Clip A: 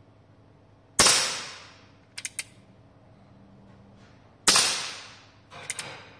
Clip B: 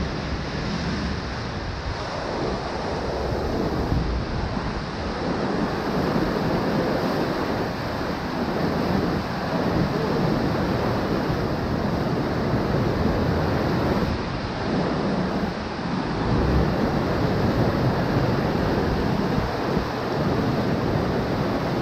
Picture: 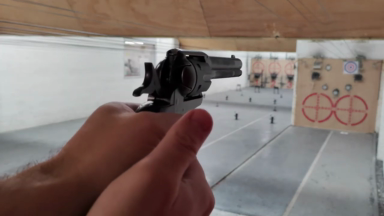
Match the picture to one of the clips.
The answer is A